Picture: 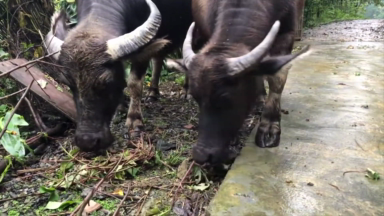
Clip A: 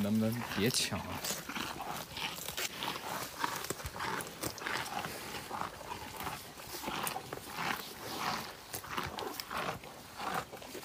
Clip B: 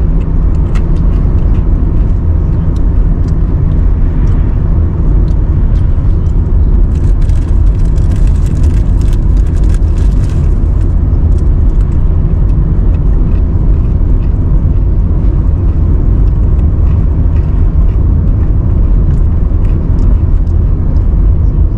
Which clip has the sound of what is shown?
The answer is A